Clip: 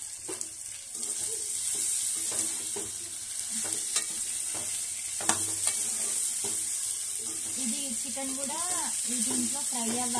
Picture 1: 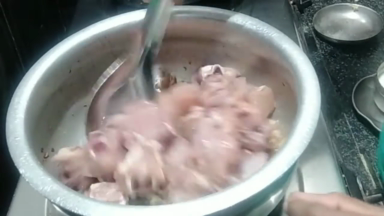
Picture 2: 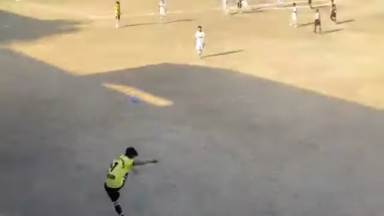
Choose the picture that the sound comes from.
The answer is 1